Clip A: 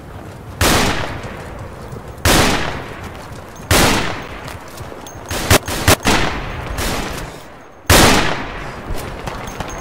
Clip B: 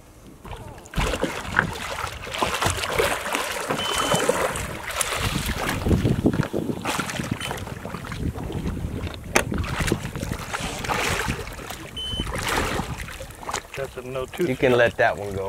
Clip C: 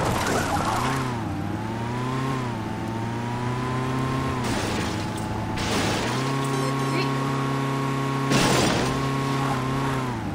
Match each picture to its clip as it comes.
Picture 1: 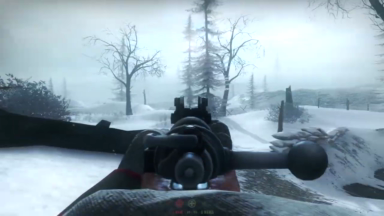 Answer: A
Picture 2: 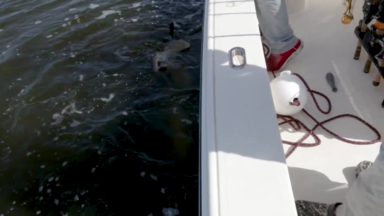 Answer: B